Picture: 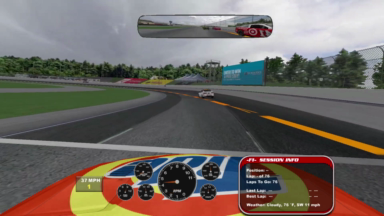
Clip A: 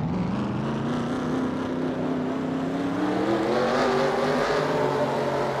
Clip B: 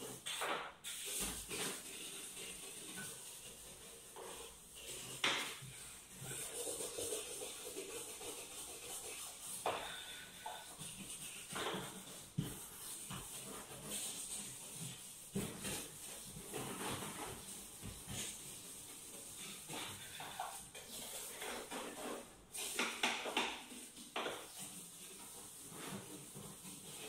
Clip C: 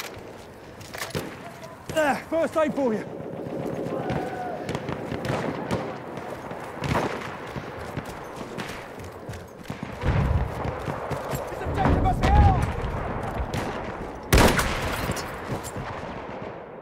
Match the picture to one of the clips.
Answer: A